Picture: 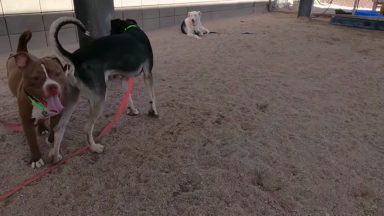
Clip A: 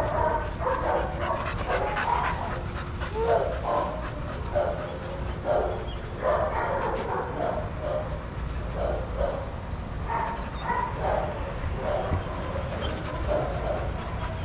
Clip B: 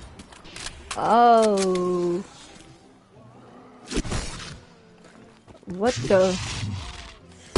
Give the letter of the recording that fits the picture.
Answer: A